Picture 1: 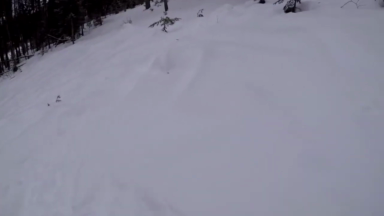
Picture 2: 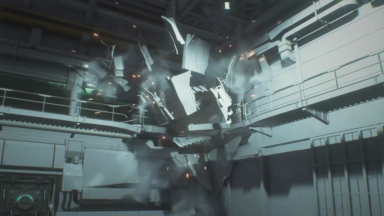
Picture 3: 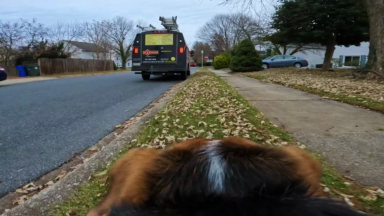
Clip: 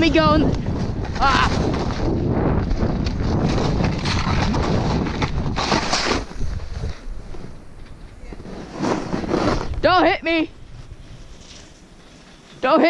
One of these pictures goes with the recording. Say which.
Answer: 1